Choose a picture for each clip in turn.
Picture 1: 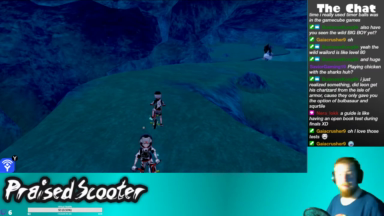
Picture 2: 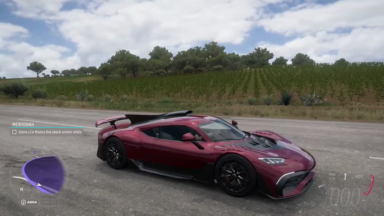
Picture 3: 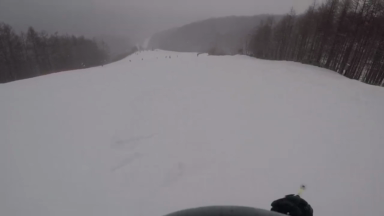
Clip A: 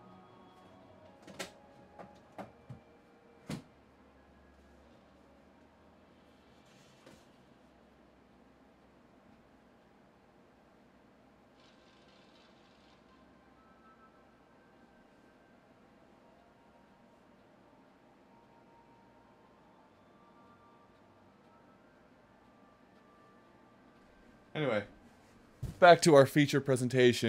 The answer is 1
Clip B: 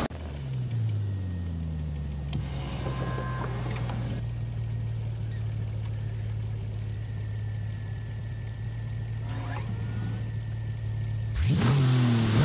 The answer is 2